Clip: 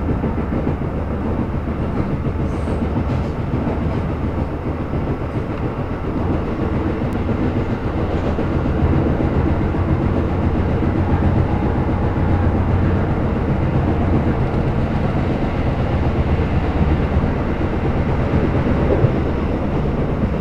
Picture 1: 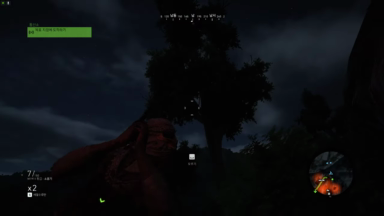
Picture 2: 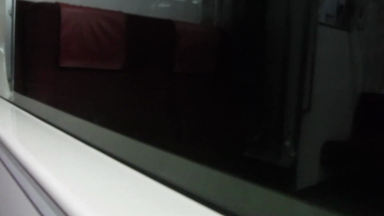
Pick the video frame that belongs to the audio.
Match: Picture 2